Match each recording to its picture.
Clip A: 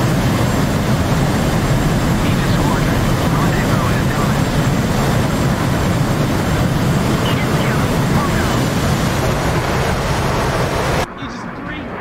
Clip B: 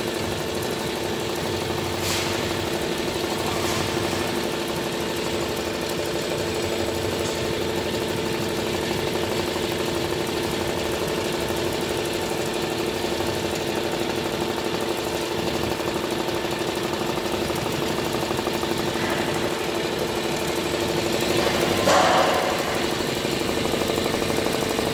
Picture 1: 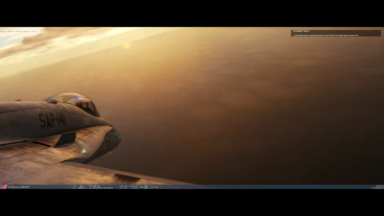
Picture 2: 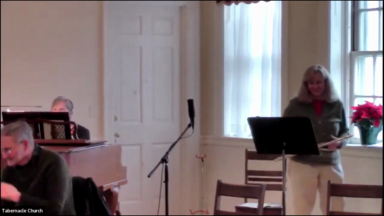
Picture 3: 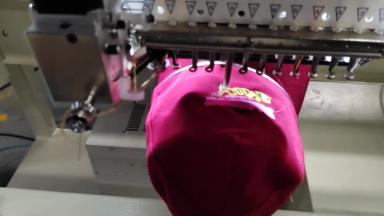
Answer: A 1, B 3